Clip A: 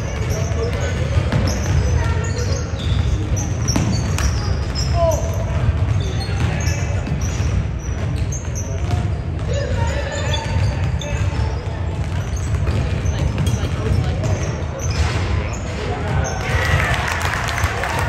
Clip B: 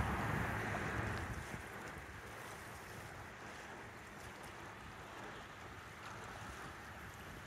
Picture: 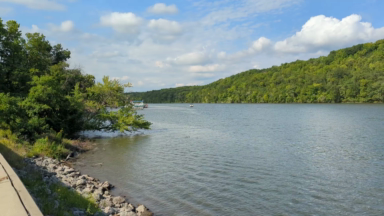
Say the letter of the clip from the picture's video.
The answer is B